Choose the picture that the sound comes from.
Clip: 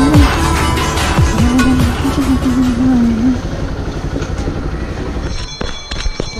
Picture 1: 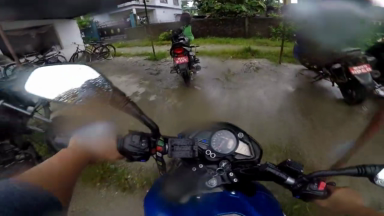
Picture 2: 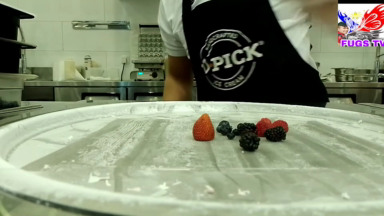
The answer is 1